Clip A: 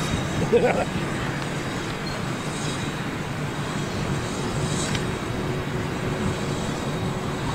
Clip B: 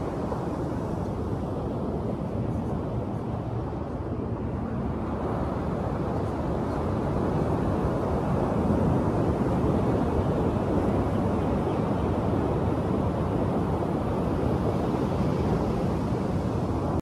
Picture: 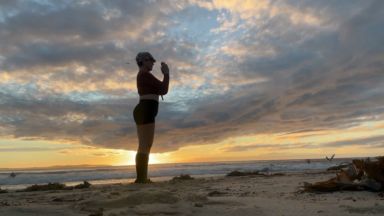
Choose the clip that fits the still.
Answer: B